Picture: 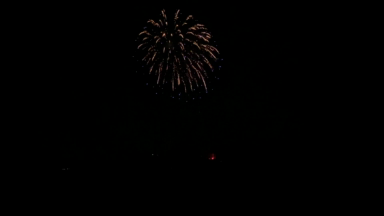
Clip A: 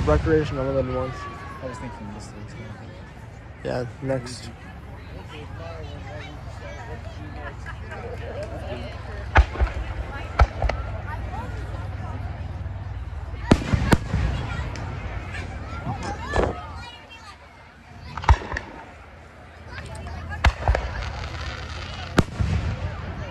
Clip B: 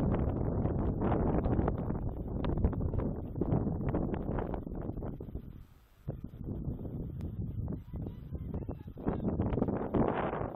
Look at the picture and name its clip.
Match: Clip A